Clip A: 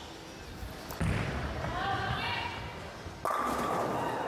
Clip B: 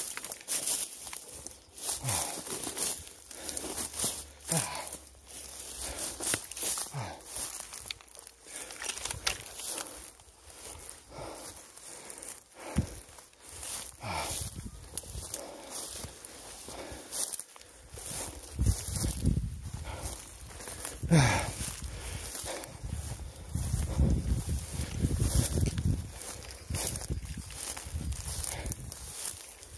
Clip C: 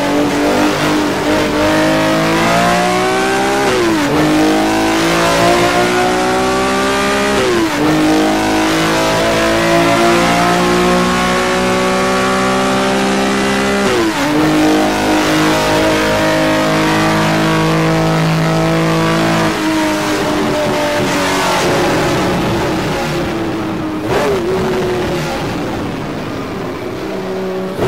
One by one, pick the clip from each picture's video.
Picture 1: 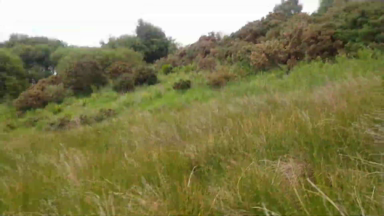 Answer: B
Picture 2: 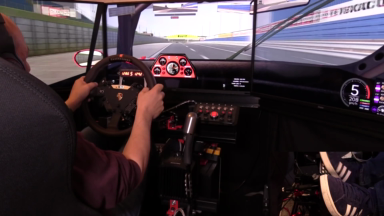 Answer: C